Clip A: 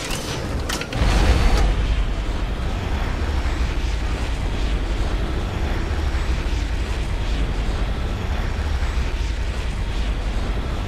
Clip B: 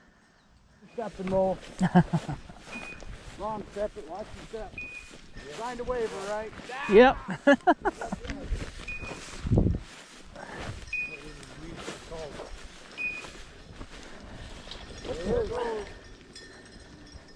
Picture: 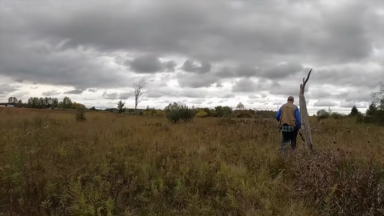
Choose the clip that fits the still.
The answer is B